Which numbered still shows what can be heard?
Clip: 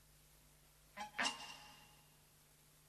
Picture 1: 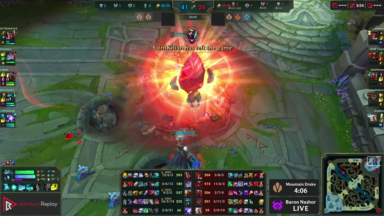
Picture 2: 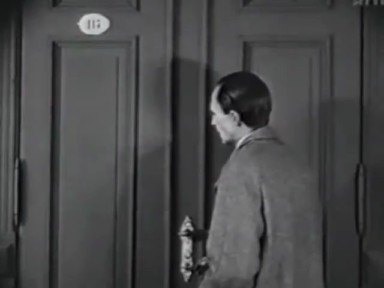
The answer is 2